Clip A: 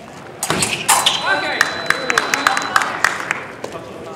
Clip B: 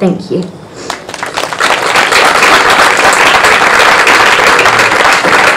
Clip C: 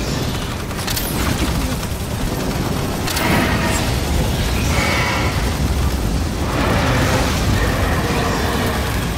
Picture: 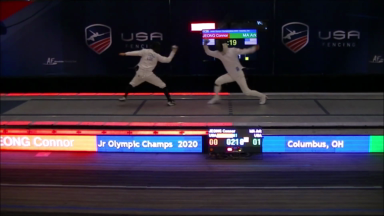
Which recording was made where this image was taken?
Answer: A